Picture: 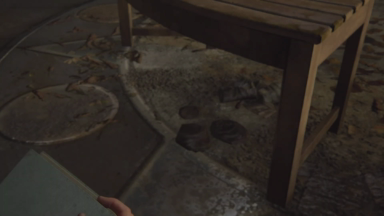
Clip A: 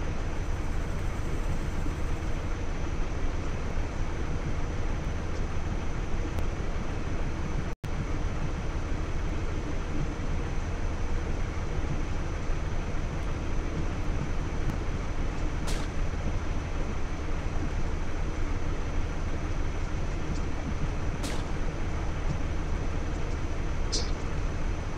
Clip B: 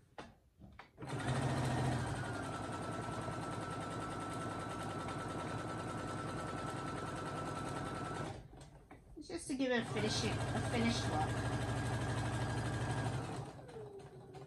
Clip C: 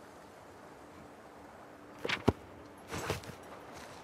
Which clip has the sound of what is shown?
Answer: C